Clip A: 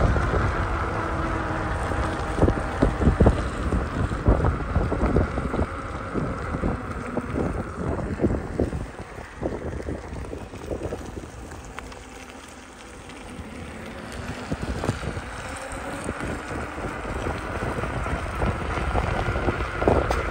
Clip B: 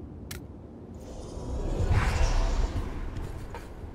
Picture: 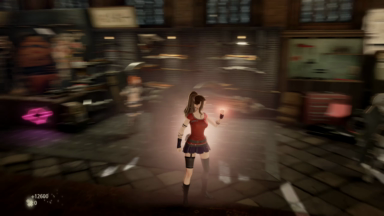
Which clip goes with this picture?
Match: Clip B